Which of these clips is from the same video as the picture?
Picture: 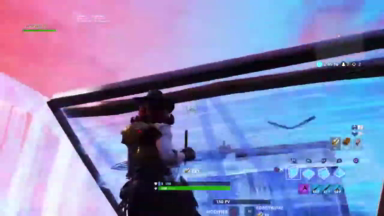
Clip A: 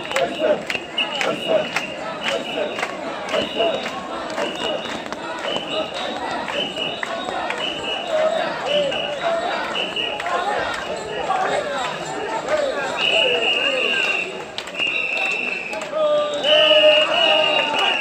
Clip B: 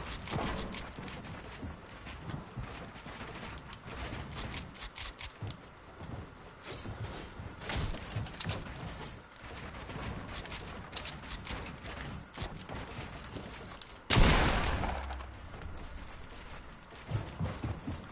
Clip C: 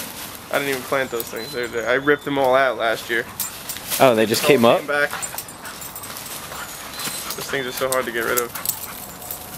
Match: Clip B